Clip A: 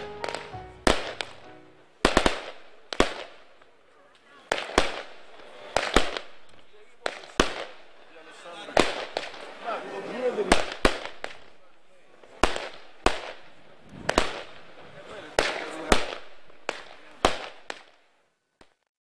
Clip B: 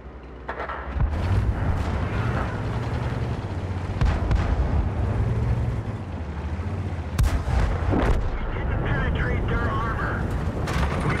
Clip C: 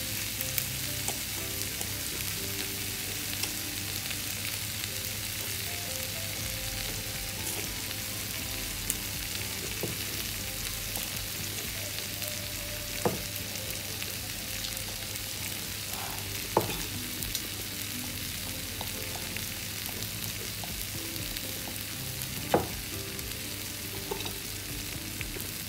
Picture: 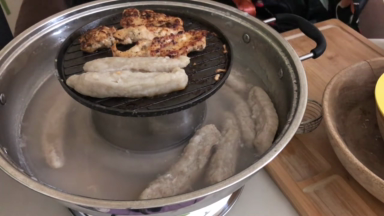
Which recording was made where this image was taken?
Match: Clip C